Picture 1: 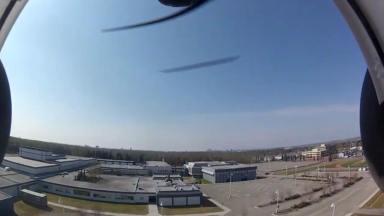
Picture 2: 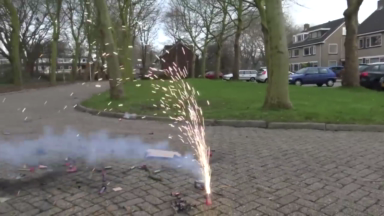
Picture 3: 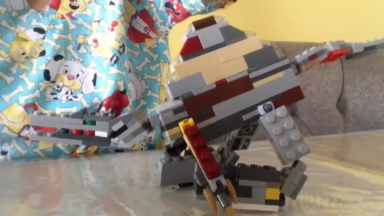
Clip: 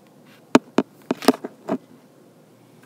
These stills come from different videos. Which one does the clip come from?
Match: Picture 3